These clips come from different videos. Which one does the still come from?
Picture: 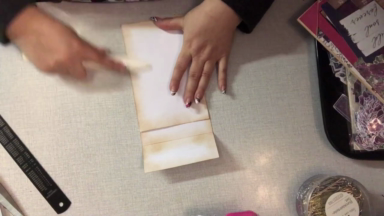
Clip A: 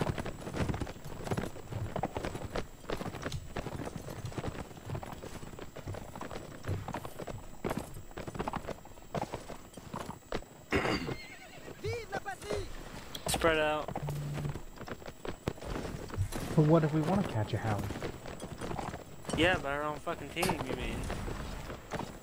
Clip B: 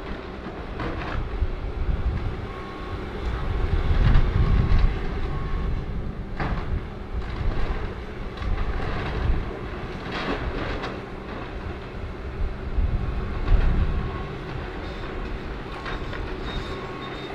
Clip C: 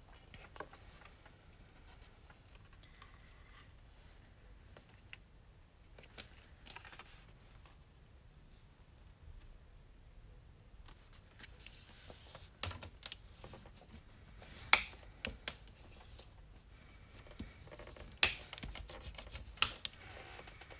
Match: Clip C